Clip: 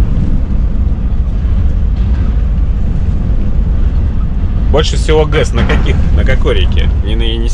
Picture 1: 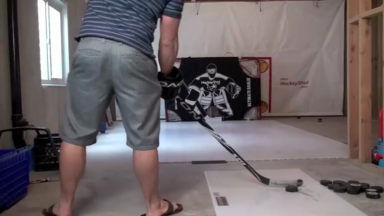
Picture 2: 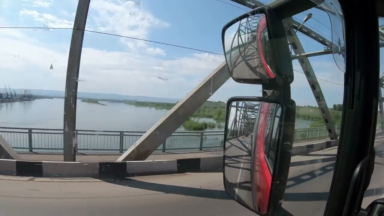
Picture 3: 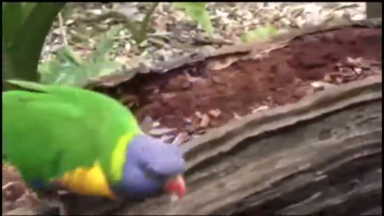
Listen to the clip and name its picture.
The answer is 2